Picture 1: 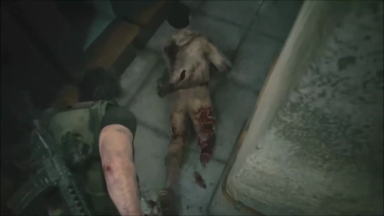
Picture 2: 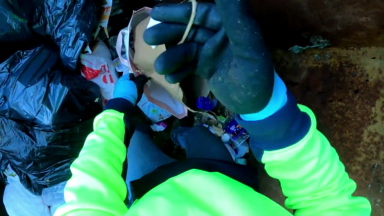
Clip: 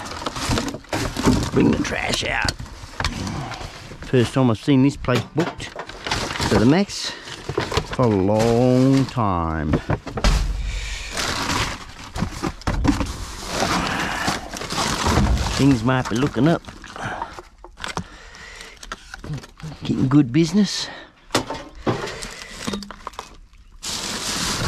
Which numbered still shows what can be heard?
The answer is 2